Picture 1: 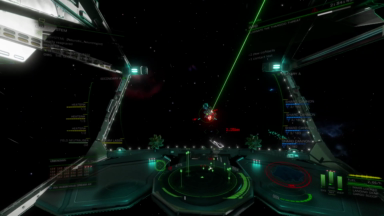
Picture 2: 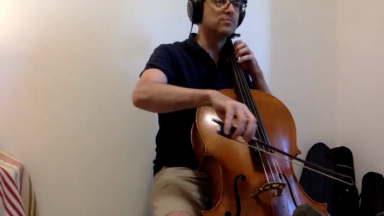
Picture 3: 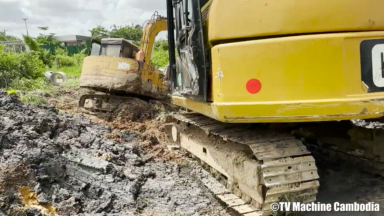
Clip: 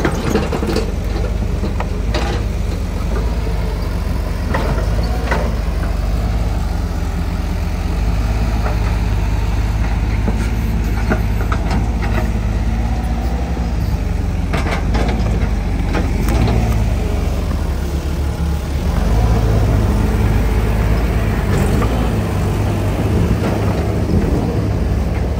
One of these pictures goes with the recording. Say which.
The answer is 3